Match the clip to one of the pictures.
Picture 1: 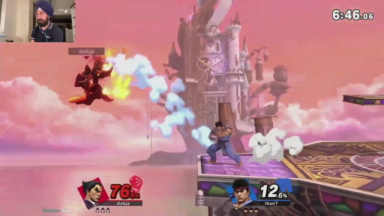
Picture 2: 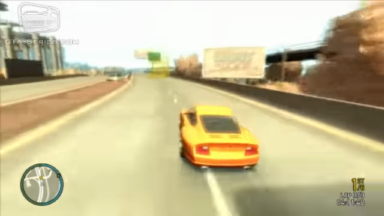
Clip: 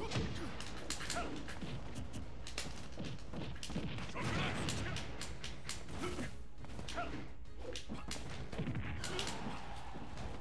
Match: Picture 1